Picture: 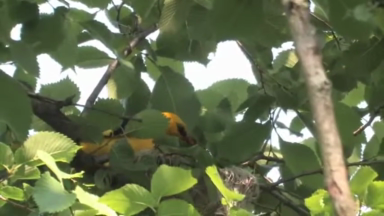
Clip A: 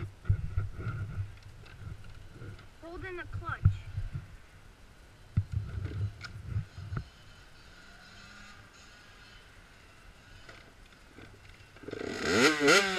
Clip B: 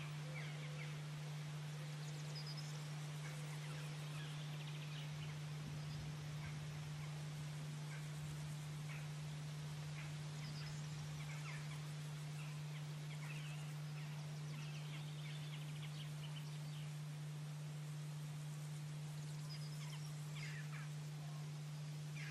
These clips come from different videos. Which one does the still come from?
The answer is B